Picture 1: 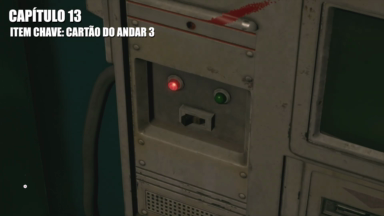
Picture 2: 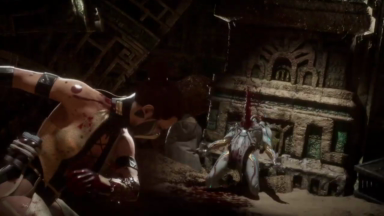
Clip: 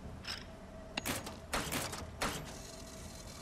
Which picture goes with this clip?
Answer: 1